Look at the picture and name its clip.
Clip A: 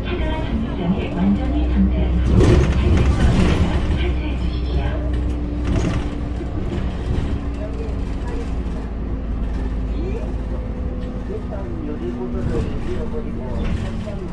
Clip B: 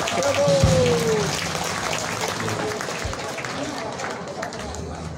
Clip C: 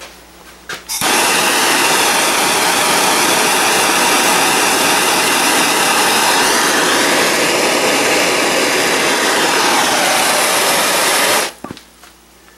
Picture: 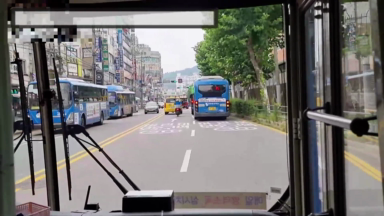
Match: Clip A